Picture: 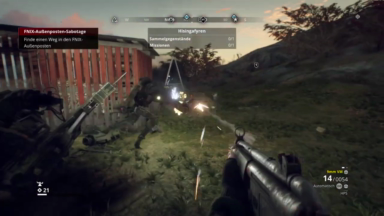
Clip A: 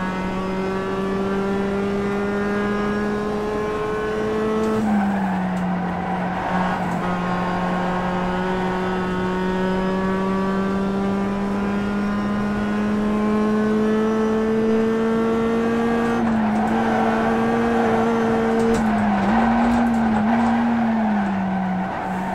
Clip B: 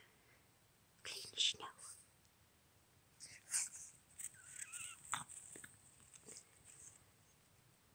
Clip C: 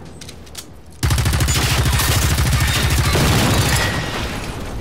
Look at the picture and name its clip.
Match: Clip C